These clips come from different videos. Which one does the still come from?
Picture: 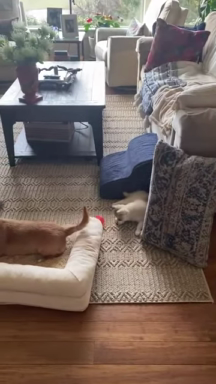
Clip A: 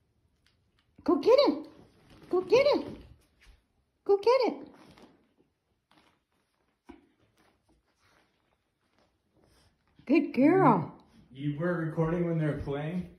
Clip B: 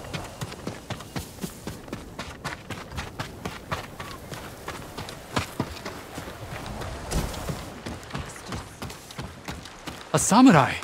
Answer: A